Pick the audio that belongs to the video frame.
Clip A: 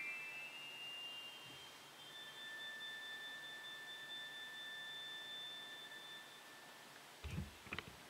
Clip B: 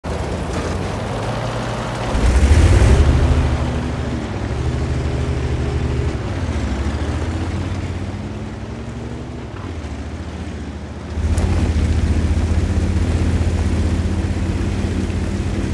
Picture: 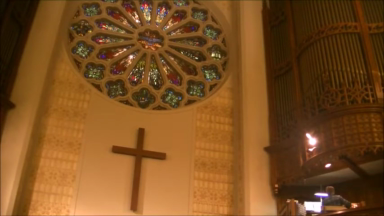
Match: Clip A